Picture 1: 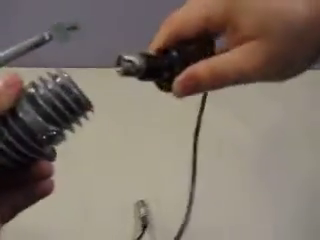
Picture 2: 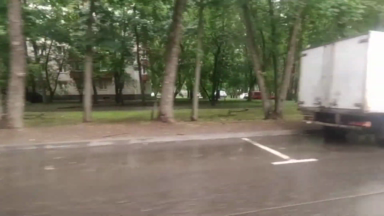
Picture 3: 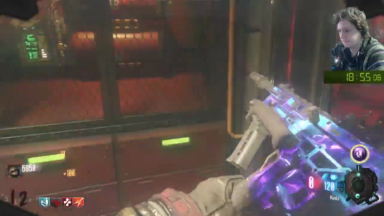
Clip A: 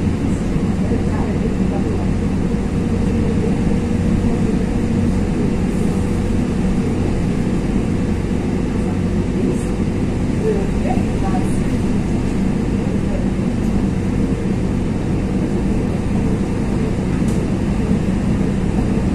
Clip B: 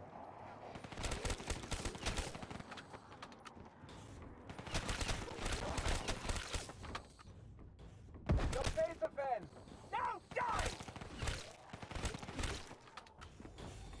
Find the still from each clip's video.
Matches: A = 2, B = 3